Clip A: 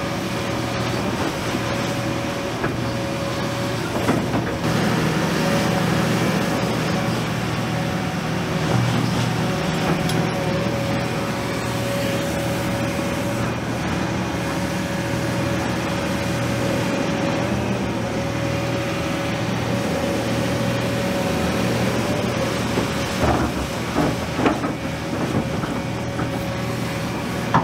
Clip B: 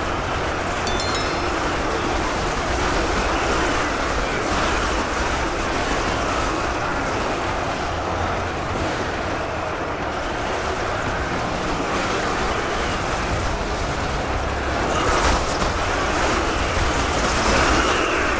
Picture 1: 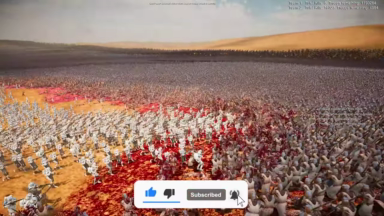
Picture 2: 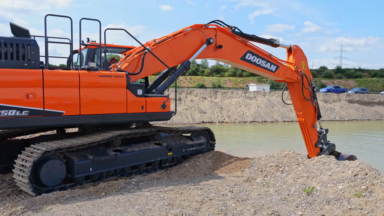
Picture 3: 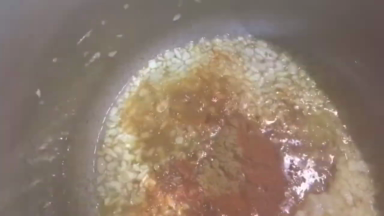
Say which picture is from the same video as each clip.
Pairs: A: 2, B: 1